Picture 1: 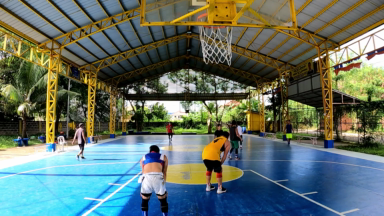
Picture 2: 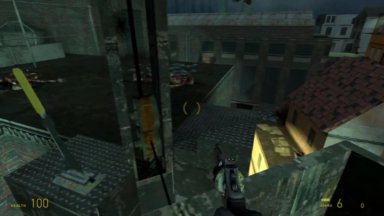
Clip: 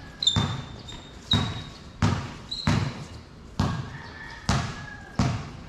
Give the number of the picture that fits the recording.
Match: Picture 1